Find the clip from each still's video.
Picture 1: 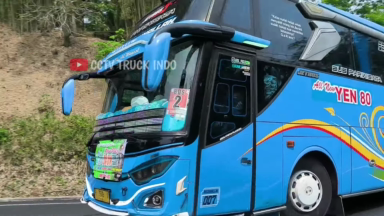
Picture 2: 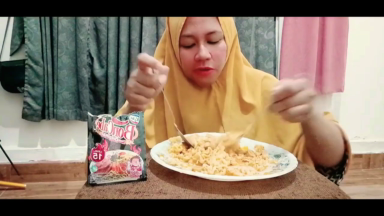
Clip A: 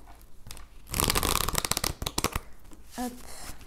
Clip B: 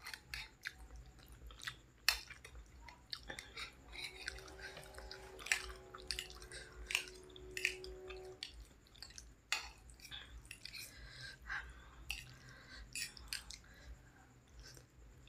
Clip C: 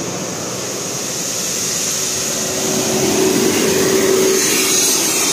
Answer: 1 C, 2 B